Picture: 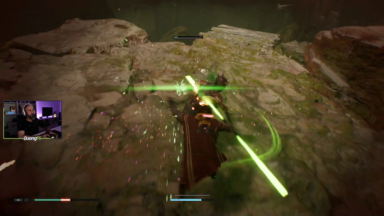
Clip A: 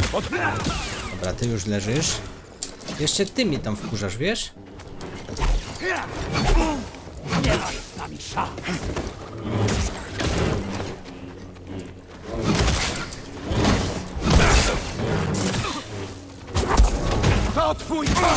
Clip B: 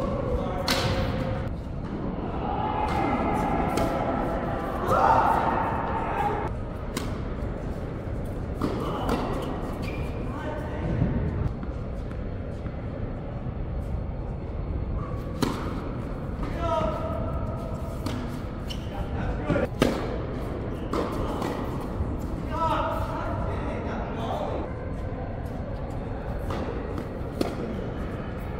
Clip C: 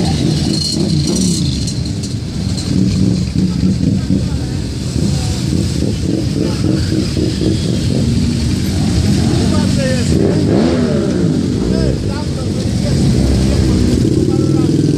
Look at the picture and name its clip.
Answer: A